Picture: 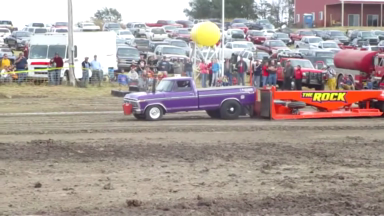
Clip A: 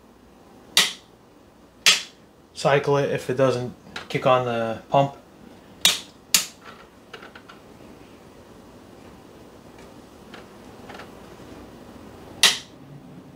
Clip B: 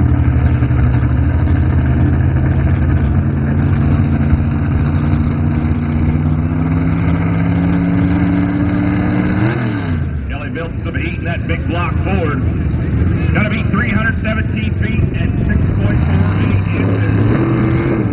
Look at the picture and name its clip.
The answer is B